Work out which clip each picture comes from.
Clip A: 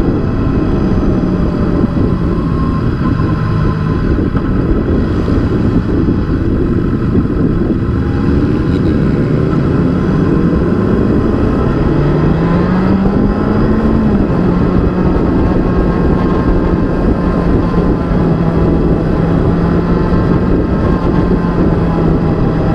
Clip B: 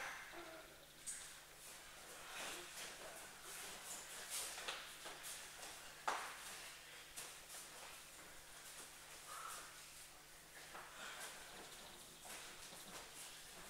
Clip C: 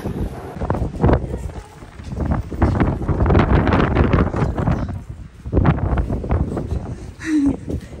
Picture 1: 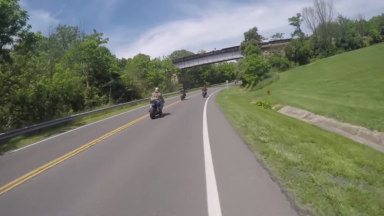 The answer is A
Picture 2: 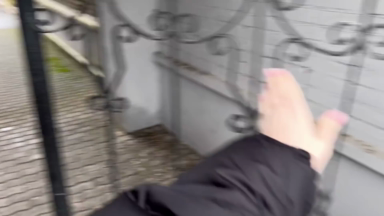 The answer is C